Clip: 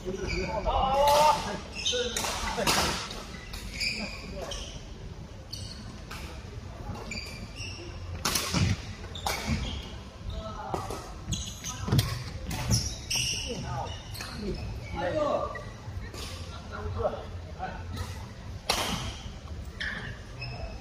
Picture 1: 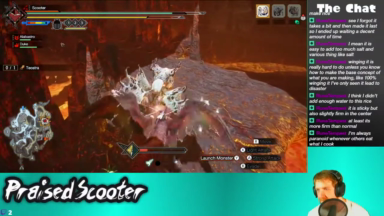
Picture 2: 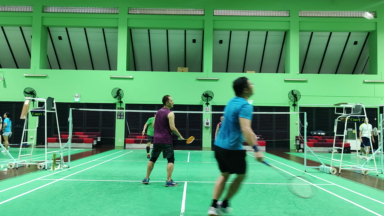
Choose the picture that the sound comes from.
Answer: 2